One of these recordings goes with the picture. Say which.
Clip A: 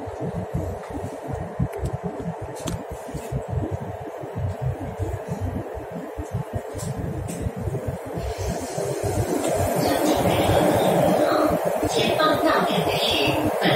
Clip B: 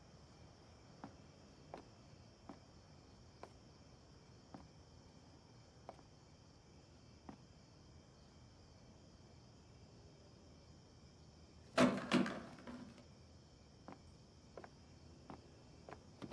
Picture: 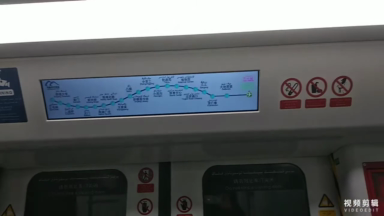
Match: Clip A